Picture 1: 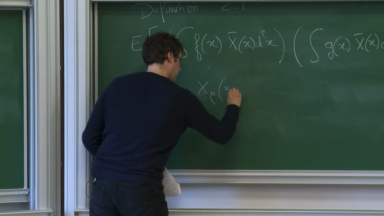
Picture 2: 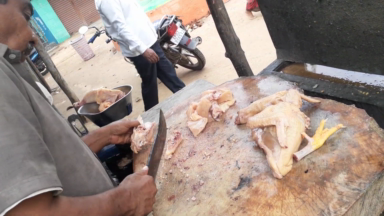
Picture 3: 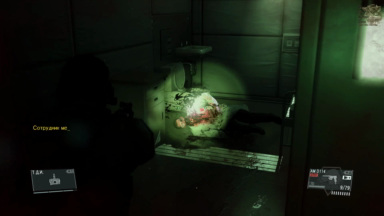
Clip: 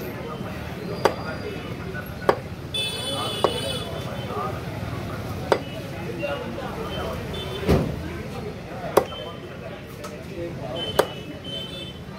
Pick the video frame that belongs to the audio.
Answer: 2